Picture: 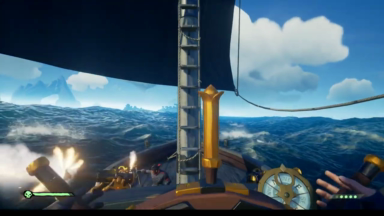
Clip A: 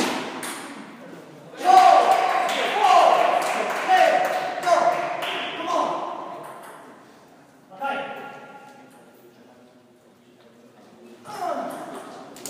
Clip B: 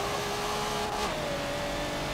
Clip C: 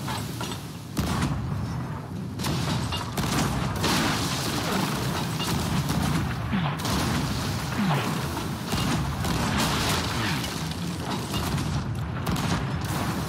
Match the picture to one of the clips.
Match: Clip C